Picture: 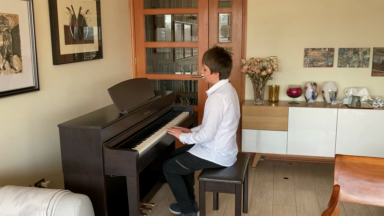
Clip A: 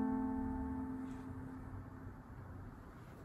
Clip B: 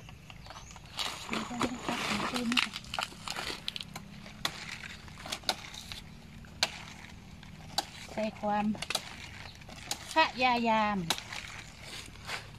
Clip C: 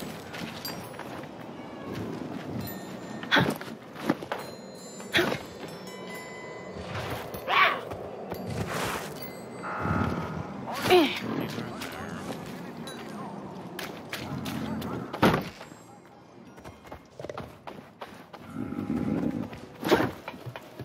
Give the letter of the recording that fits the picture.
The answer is A